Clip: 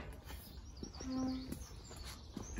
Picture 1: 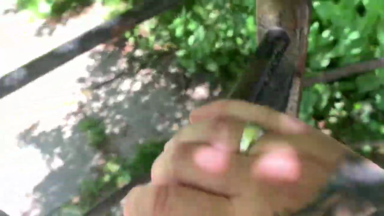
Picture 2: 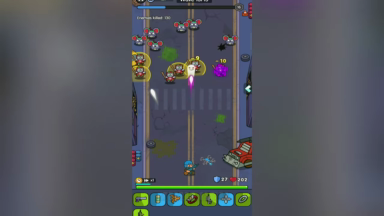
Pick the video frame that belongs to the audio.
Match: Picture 1